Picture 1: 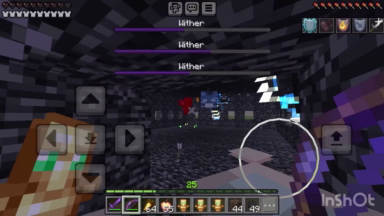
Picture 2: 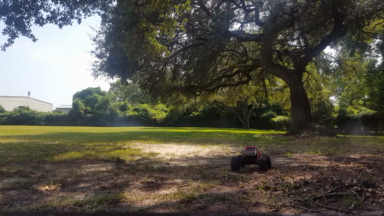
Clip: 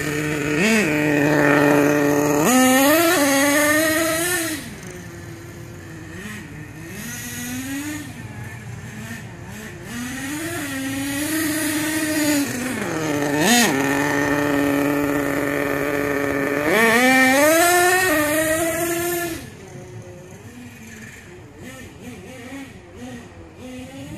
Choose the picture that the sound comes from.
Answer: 2